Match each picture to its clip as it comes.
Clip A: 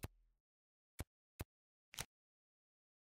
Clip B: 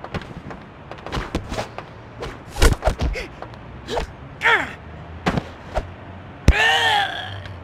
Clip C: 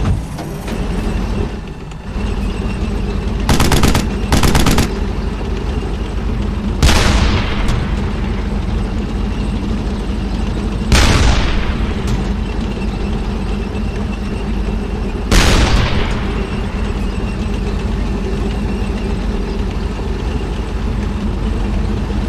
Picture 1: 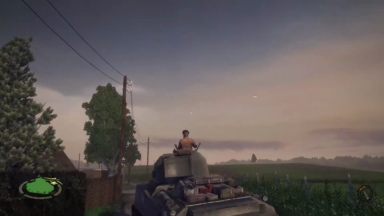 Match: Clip C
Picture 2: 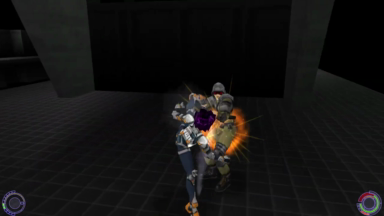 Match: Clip B